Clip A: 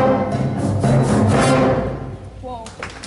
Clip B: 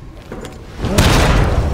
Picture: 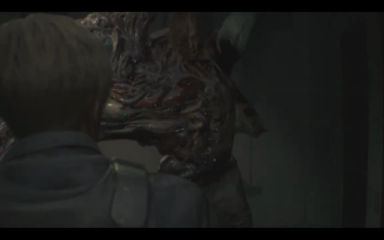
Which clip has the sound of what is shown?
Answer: B